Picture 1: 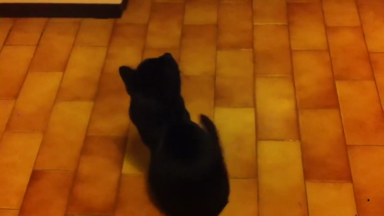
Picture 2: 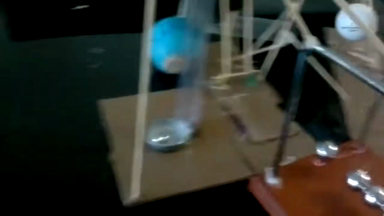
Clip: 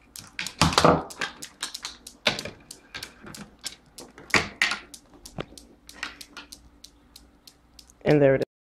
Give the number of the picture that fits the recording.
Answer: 2